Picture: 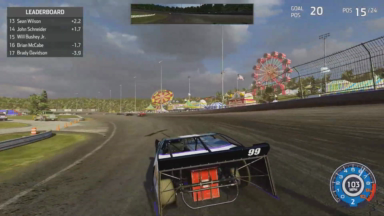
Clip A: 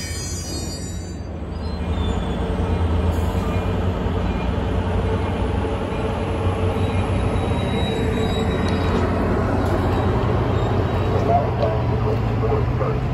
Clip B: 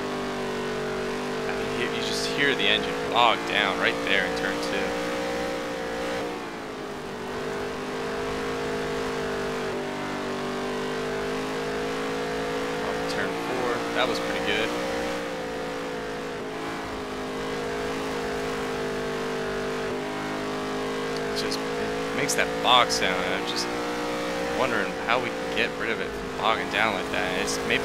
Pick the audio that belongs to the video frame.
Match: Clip B